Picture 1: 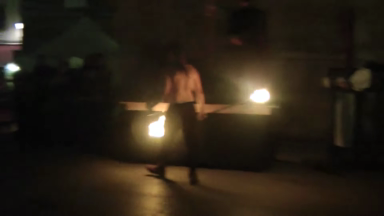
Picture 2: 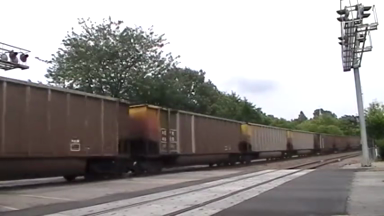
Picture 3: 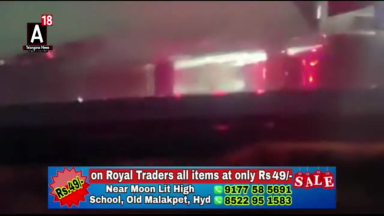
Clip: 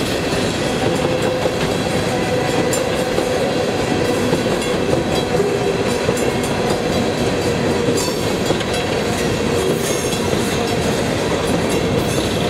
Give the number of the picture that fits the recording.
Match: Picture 2